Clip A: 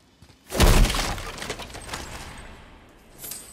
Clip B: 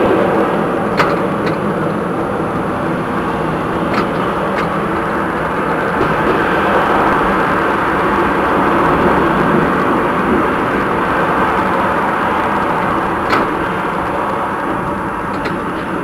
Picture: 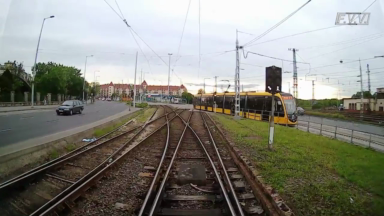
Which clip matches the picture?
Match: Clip B